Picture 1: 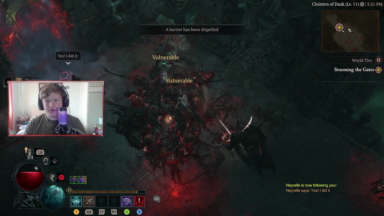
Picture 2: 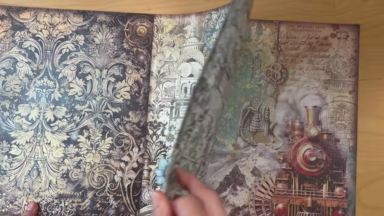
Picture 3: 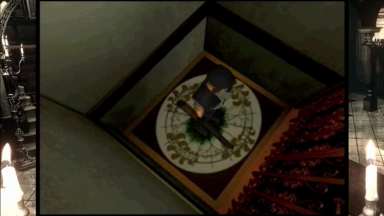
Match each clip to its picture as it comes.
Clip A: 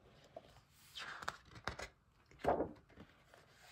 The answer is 2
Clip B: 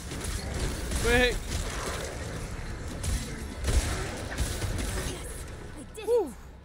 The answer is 1